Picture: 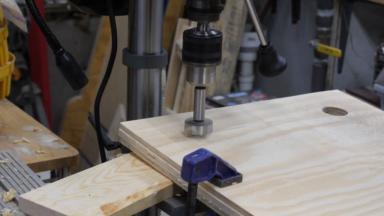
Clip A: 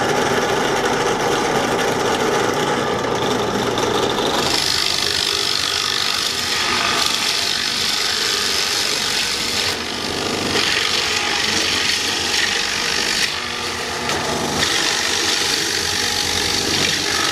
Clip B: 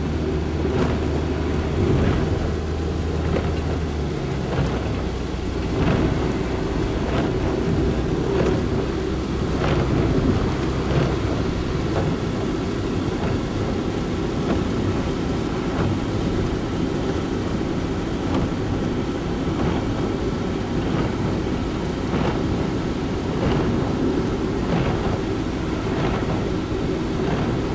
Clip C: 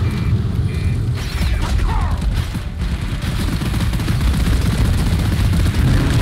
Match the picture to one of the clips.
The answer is A